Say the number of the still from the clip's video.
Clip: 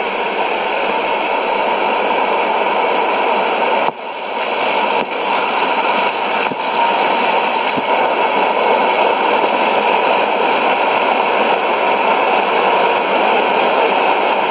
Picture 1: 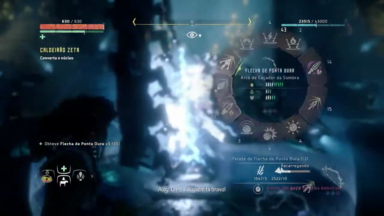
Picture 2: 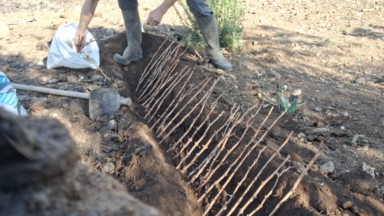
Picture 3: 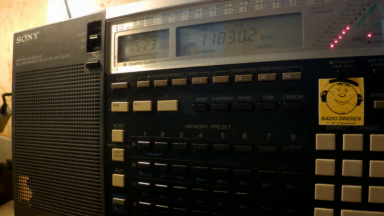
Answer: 3